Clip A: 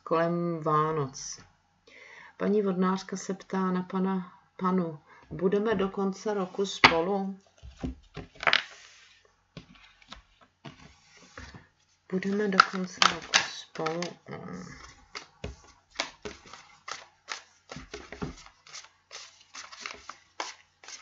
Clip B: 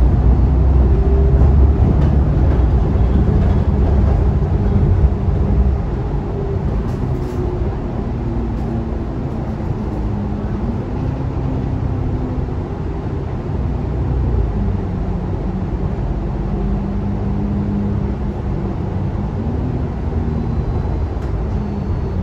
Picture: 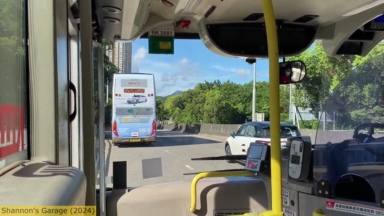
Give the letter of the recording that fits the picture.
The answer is B